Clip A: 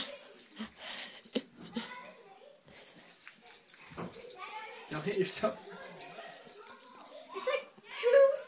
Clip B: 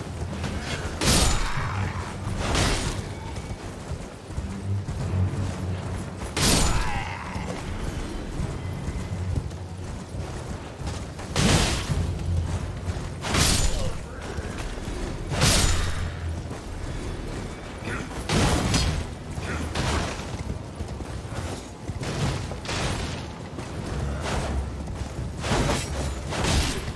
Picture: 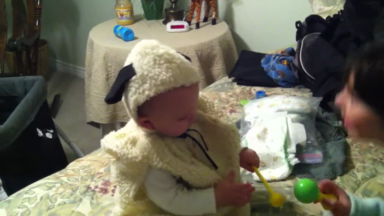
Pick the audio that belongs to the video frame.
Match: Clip A